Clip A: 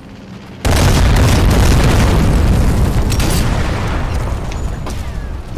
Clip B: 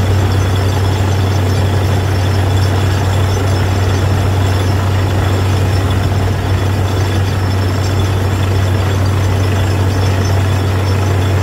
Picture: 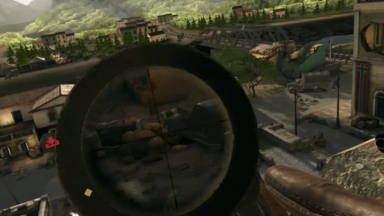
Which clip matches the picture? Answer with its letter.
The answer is A